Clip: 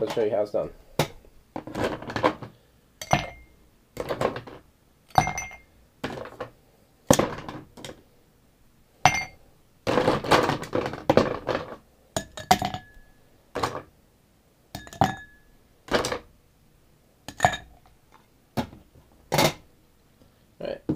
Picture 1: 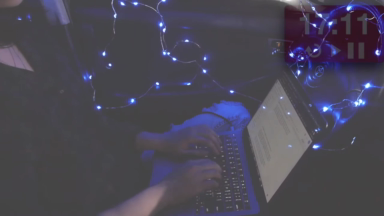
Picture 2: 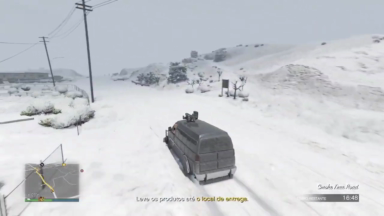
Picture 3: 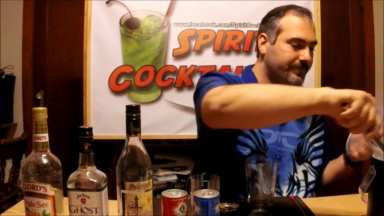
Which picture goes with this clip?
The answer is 3